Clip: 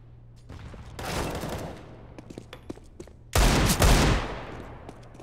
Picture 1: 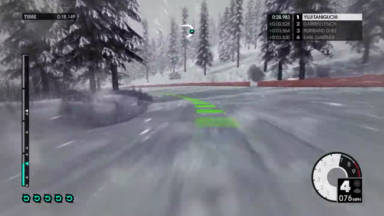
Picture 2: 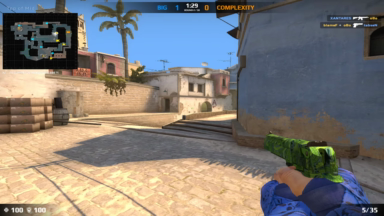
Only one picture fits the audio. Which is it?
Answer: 2